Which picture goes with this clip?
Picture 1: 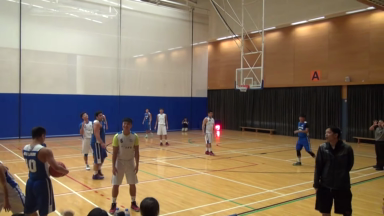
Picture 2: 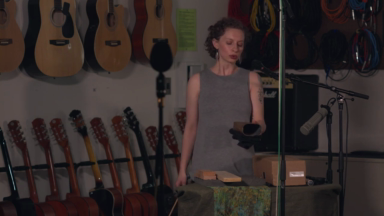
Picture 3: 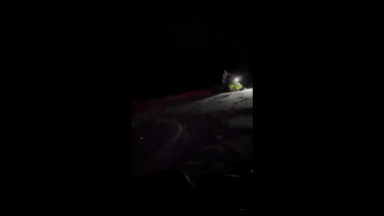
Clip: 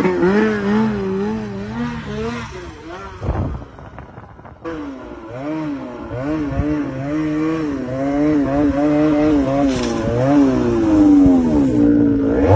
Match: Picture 3